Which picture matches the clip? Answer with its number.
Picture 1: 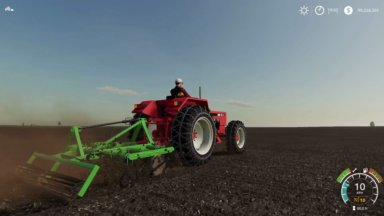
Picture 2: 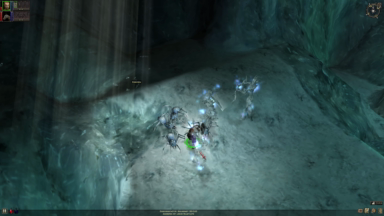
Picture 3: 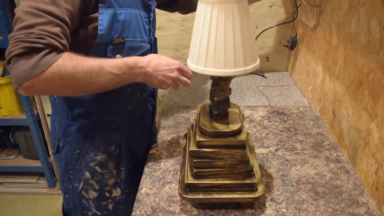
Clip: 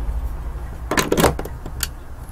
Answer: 3